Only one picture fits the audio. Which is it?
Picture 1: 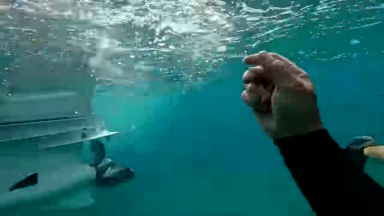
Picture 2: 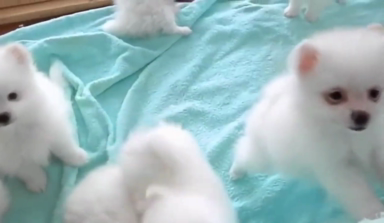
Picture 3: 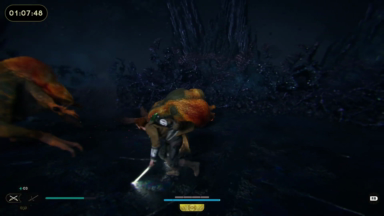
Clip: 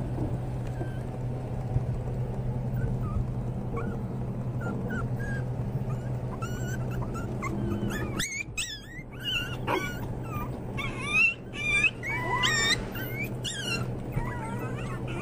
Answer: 2